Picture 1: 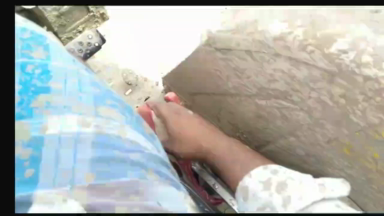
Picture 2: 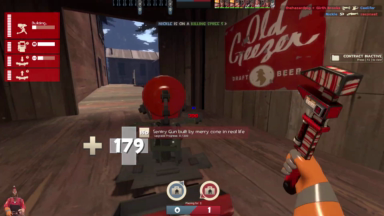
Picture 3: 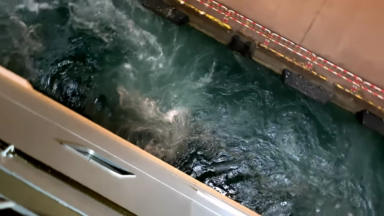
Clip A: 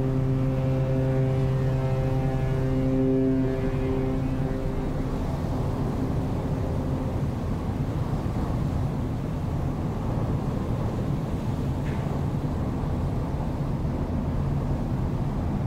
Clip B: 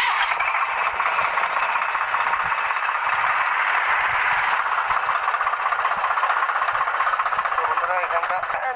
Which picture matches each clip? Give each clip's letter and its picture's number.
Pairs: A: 3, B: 1